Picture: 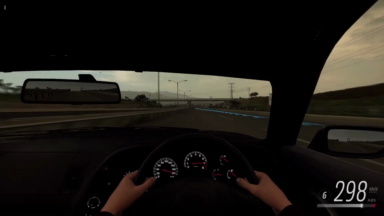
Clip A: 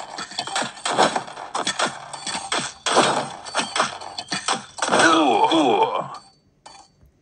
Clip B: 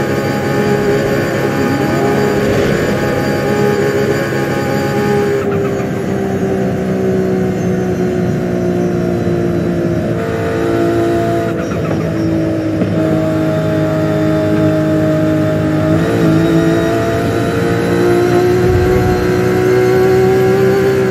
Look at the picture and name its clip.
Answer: B